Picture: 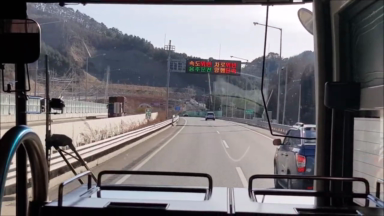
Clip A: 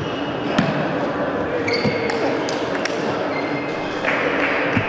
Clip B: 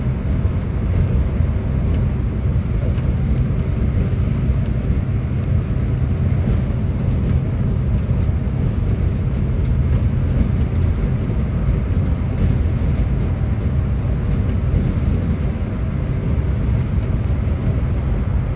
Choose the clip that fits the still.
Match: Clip B